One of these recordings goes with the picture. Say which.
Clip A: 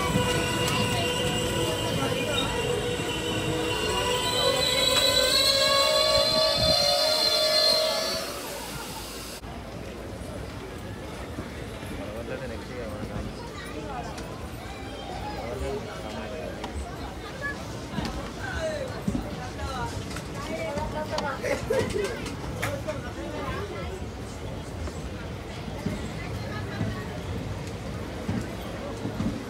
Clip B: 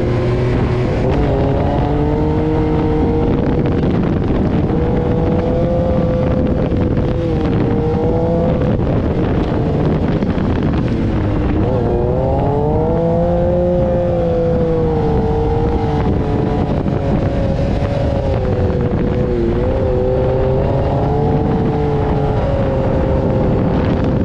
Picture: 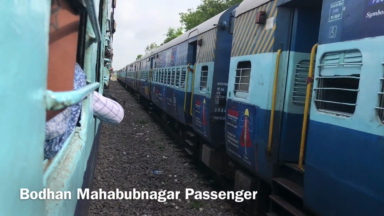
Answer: A